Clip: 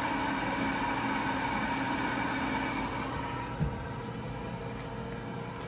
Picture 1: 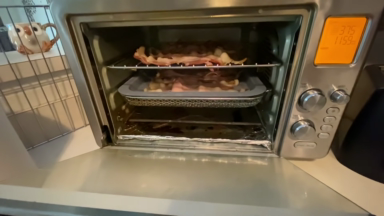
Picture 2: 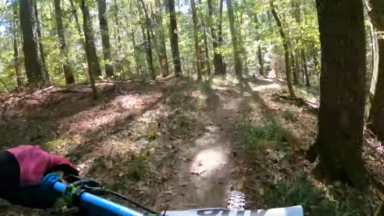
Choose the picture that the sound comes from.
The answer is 1